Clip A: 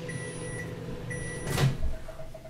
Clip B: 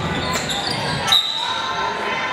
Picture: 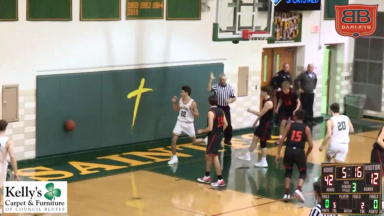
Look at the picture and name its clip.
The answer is B